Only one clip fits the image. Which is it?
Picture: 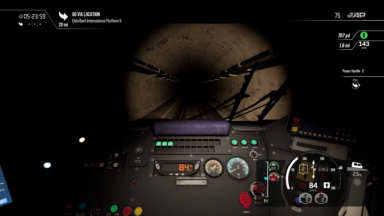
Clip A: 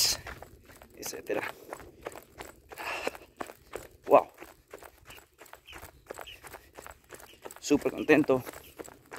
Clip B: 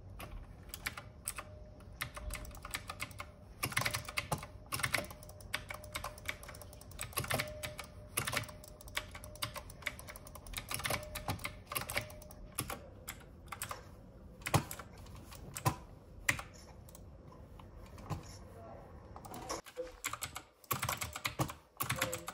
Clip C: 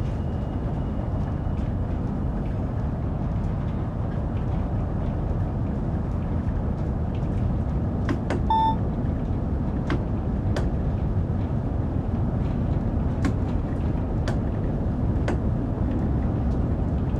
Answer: C